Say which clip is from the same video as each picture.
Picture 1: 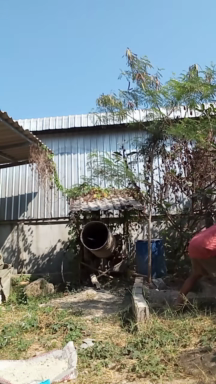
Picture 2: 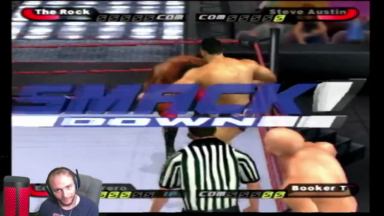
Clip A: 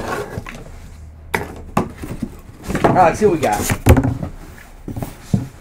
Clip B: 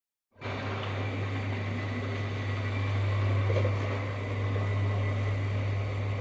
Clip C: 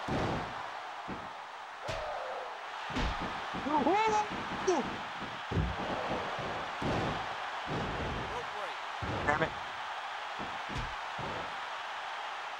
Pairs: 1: B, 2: C